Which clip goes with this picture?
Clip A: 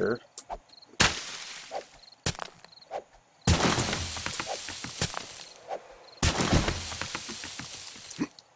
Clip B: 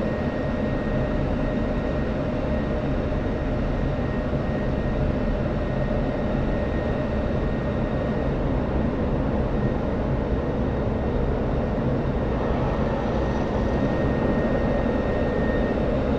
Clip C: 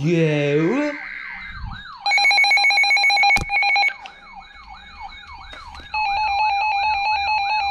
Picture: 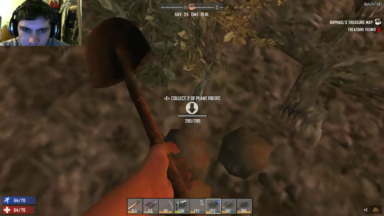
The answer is A